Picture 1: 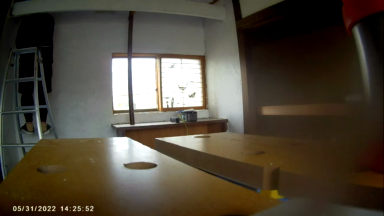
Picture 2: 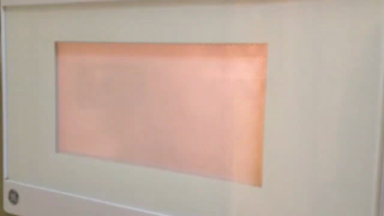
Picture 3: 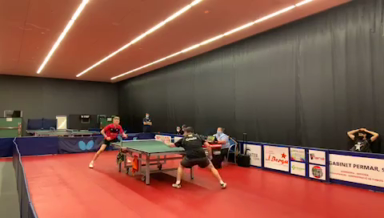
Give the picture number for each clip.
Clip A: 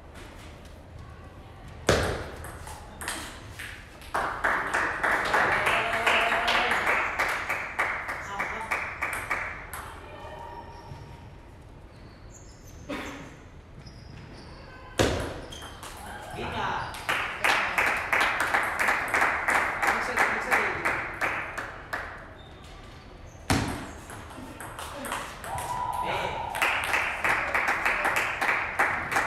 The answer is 3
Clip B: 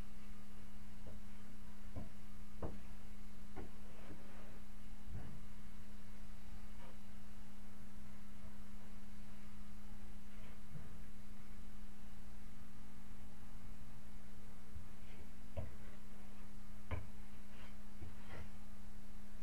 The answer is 1